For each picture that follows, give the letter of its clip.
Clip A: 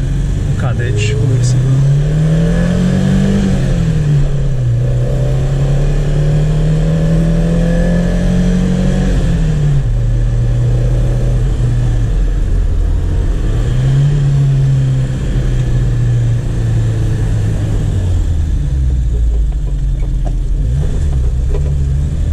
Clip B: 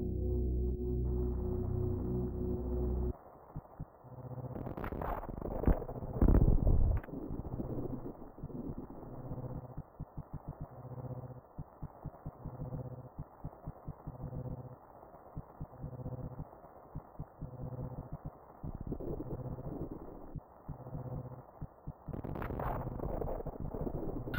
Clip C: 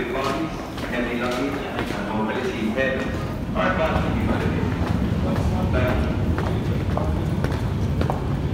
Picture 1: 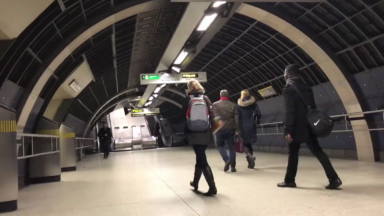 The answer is C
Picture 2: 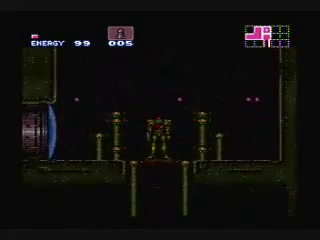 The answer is B